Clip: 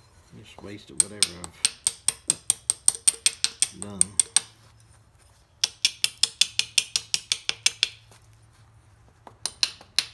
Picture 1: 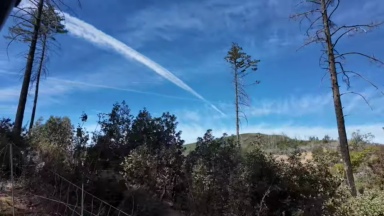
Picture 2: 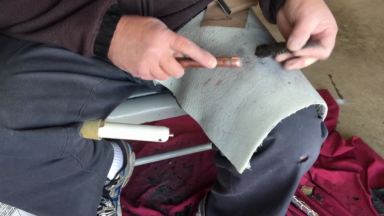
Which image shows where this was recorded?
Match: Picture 2